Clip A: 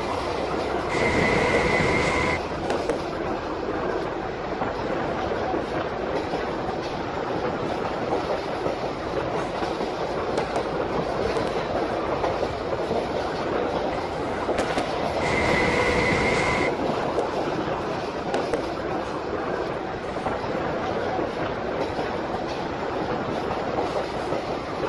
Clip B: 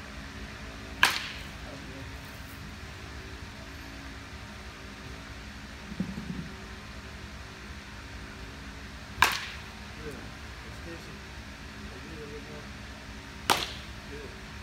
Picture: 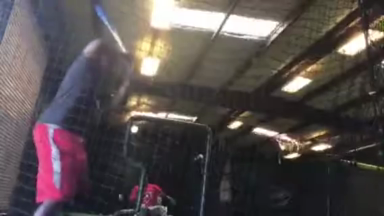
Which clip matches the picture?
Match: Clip B